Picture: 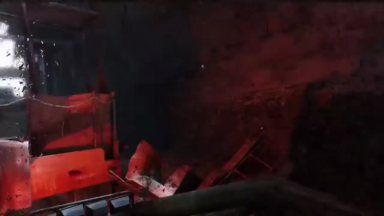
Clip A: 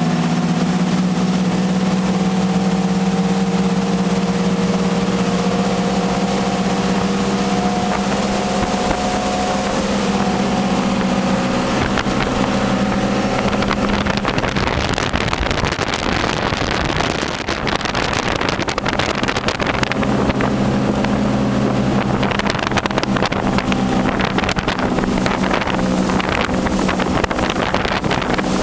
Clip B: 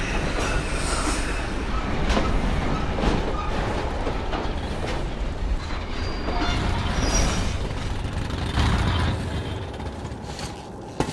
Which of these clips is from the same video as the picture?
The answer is B